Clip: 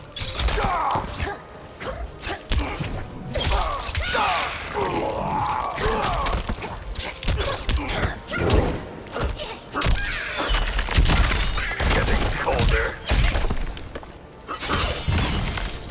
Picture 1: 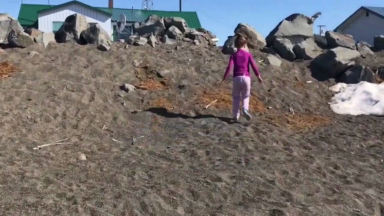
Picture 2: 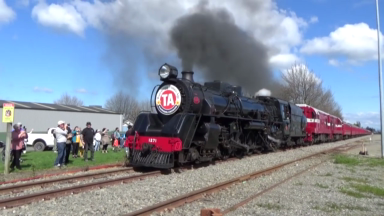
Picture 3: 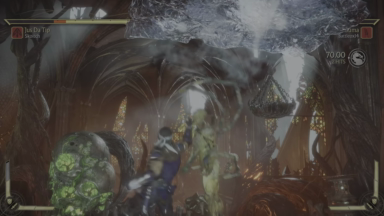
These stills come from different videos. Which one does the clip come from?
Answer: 3